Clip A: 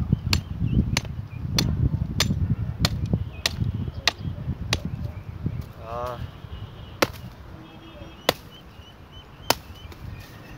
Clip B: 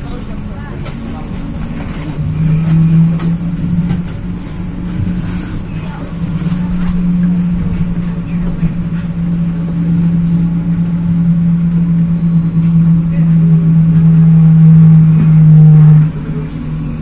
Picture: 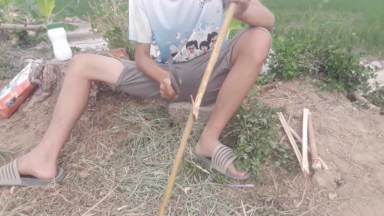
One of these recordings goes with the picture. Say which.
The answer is A